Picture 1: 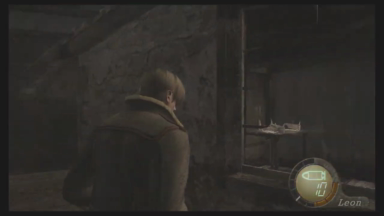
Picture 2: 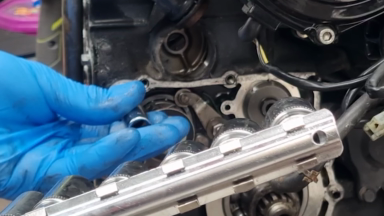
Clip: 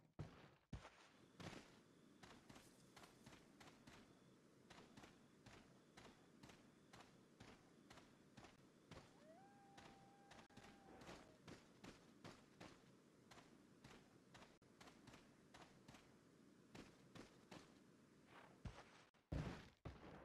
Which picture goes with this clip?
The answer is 1